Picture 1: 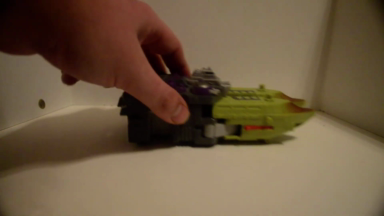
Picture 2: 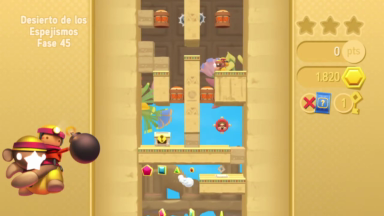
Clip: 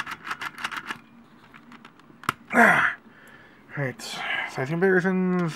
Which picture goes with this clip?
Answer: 1